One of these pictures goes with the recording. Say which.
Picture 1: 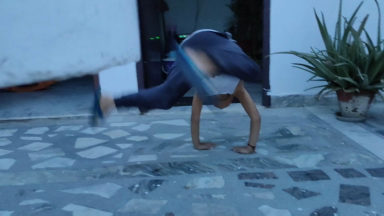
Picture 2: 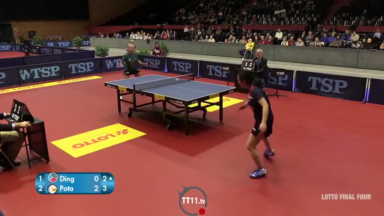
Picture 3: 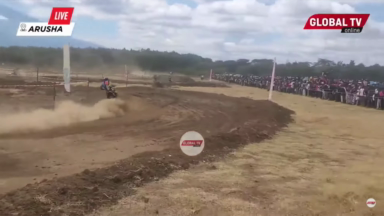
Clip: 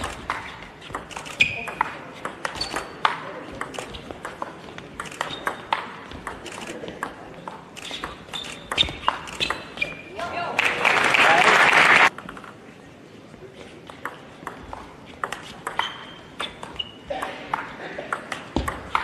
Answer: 2